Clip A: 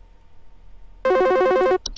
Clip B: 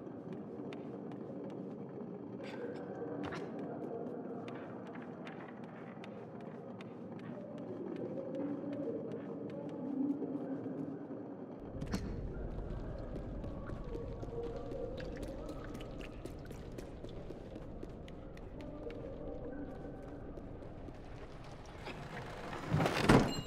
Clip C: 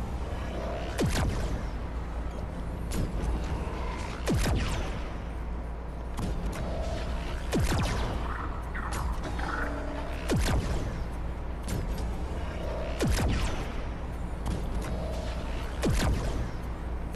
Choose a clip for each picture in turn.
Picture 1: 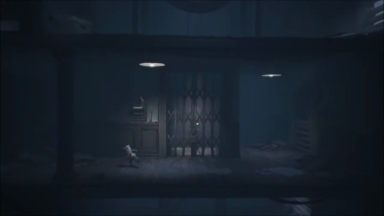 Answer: B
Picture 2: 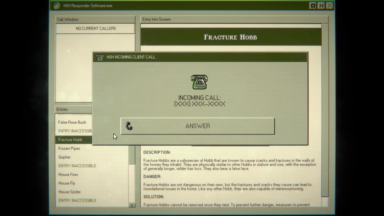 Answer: A